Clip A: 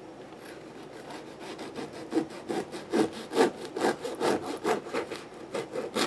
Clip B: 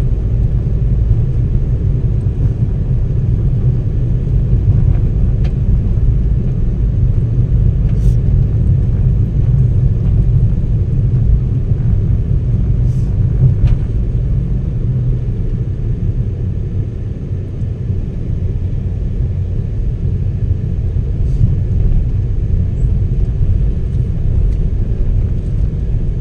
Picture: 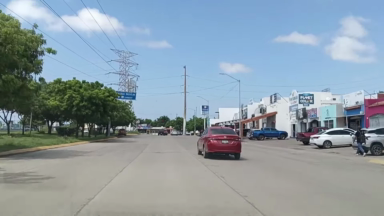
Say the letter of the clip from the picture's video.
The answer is B